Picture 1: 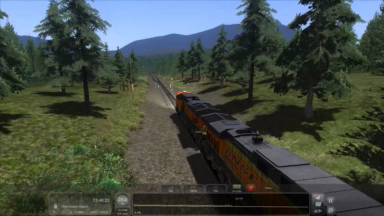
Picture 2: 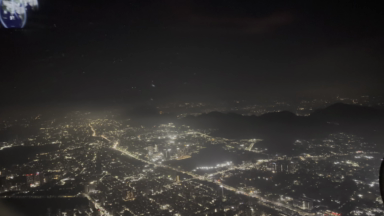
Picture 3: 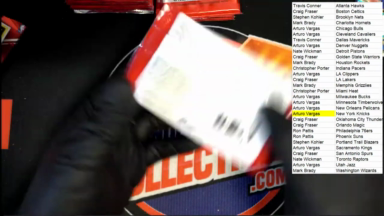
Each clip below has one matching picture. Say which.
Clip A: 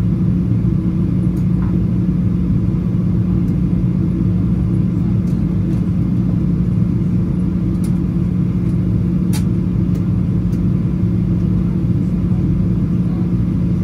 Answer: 2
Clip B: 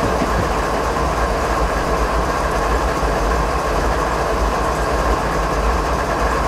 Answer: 1